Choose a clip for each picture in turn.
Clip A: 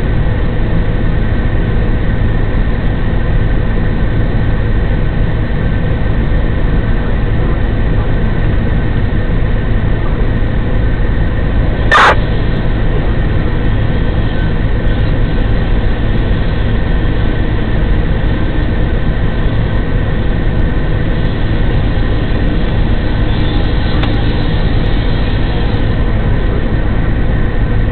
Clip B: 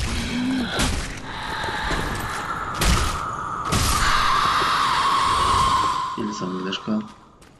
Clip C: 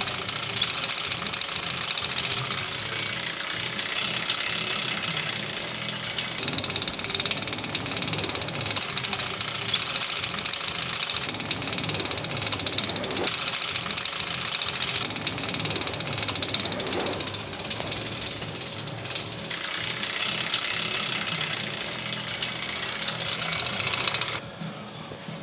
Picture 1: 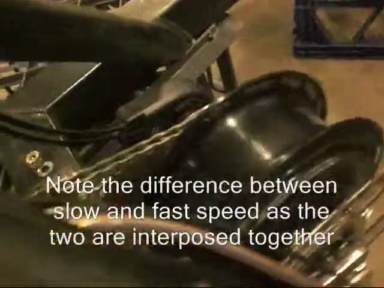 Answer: C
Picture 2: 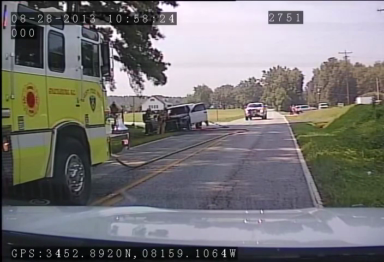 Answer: A